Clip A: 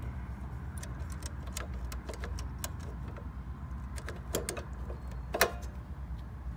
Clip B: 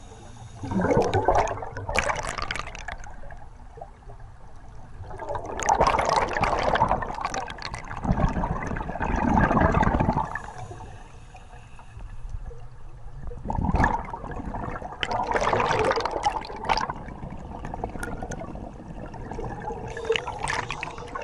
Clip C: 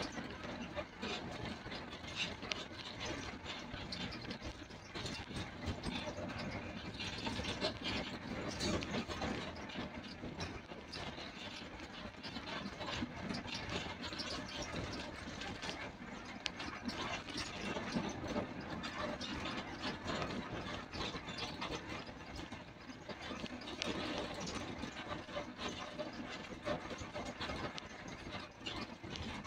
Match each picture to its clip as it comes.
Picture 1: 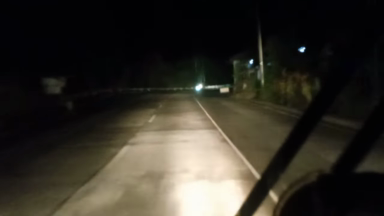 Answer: C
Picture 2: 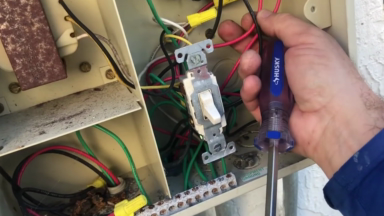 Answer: A